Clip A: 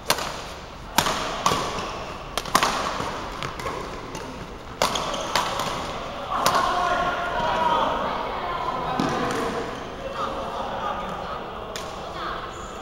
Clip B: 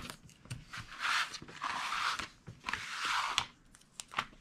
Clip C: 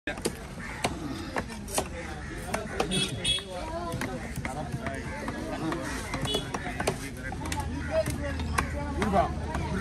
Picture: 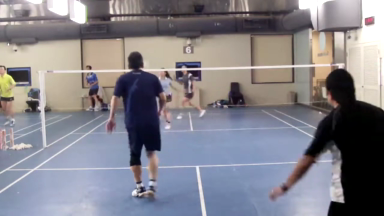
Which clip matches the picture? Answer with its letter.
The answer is A